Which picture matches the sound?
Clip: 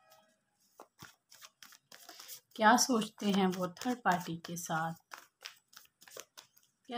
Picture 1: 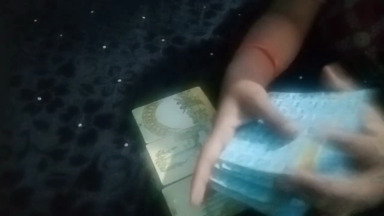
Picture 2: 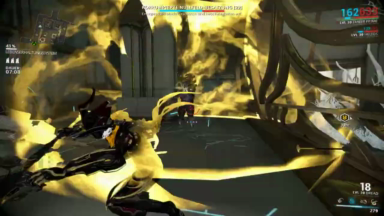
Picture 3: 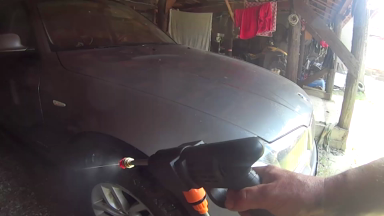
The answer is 1